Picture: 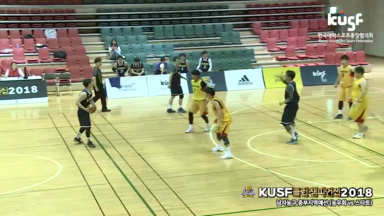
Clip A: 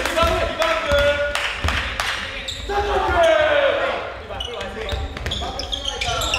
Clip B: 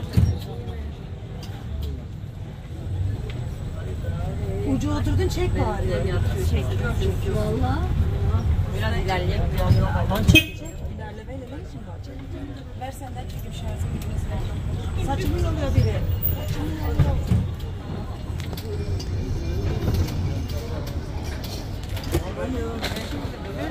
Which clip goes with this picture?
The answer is A